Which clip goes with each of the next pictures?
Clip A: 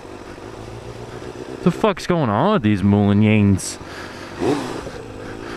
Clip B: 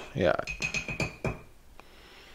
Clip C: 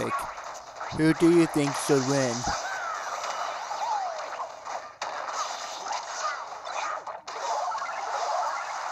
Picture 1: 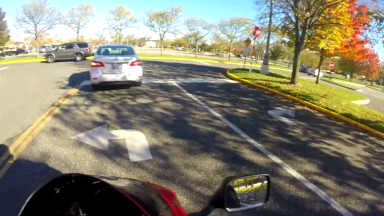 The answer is A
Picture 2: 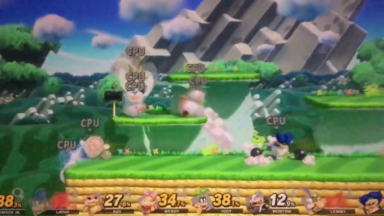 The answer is C